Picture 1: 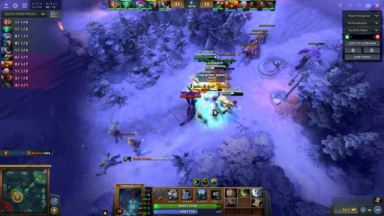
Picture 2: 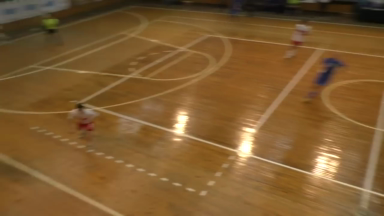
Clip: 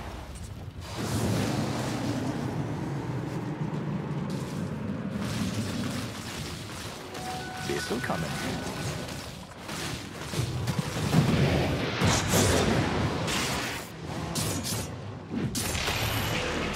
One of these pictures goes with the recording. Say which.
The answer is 1